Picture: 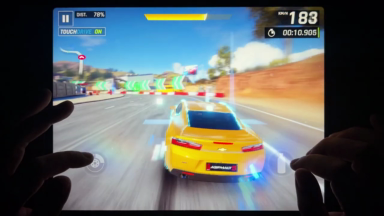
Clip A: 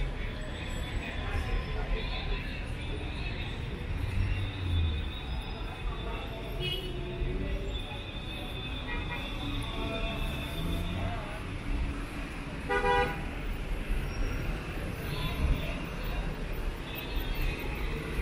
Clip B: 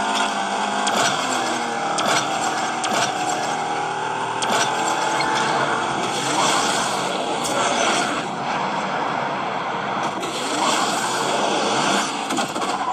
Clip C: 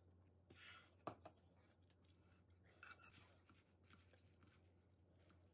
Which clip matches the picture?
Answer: B